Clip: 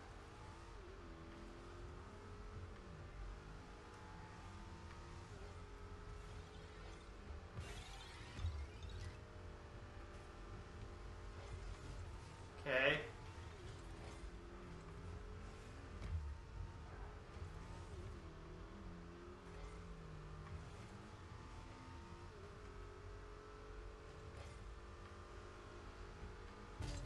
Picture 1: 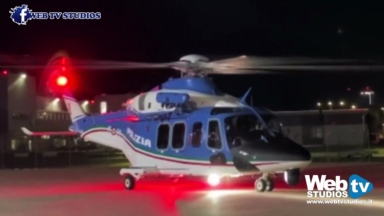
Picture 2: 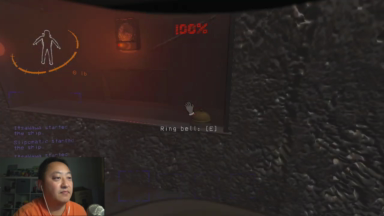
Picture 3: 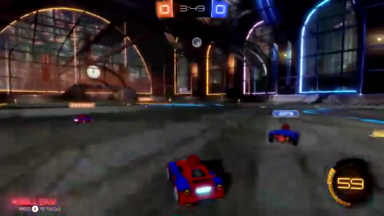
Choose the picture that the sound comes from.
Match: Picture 3